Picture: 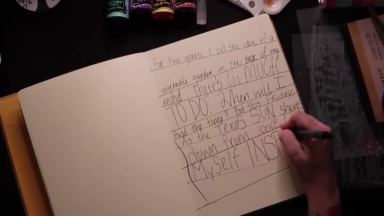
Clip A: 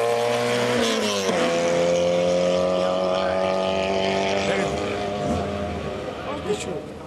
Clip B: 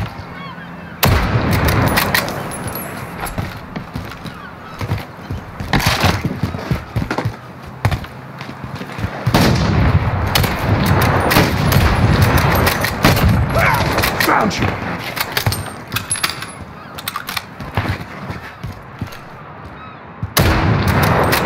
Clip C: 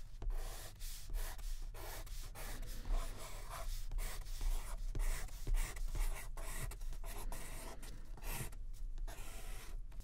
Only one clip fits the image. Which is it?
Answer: C